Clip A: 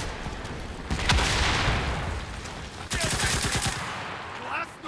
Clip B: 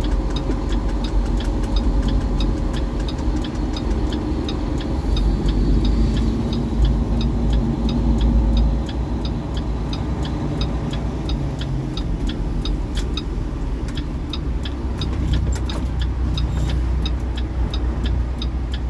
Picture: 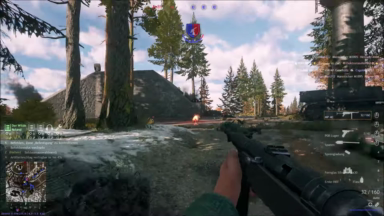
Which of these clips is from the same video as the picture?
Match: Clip A